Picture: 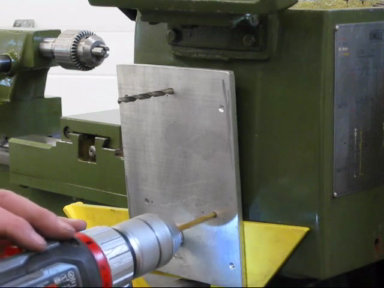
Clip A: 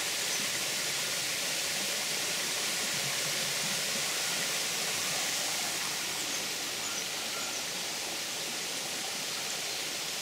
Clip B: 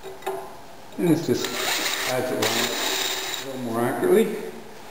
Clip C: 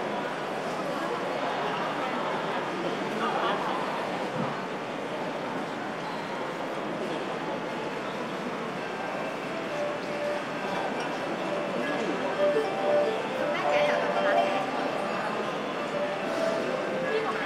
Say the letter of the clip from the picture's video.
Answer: B